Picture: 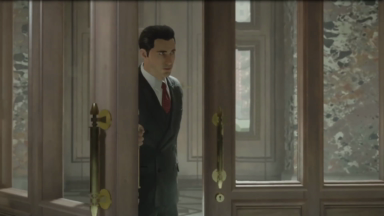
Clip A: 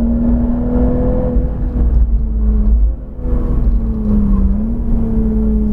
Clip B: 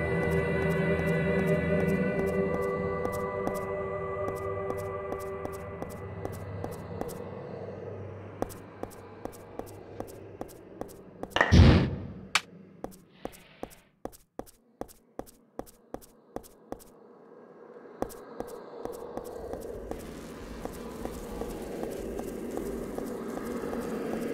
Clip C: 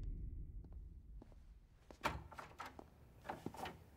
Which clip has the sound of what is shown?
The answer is C